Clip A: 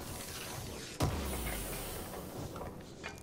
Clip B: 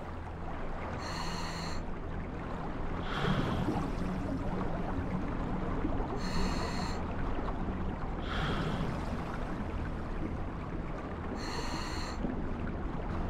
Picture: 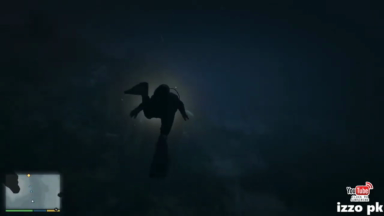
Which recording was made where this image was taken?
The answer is B